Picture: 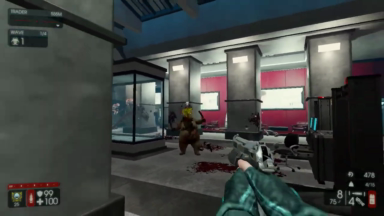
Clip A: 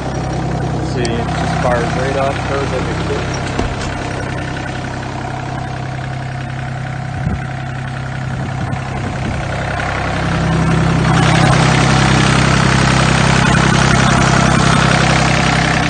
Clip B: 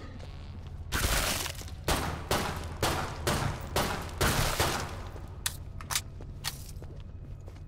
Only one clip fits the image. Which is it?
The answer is B